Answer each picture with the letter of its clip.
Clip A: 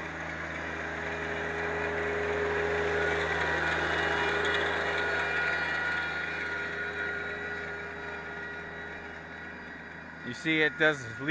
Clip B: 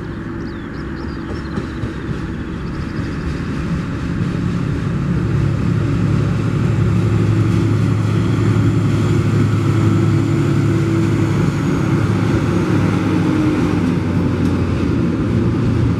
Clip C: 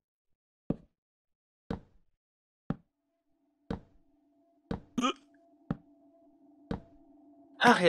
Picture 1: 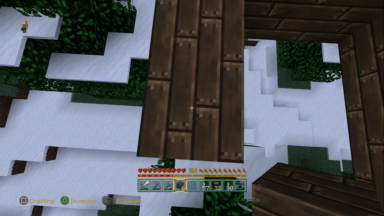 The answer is C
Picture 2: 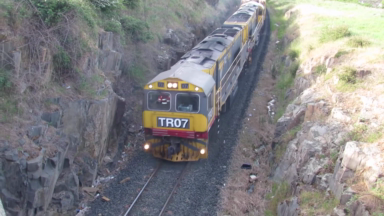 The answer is B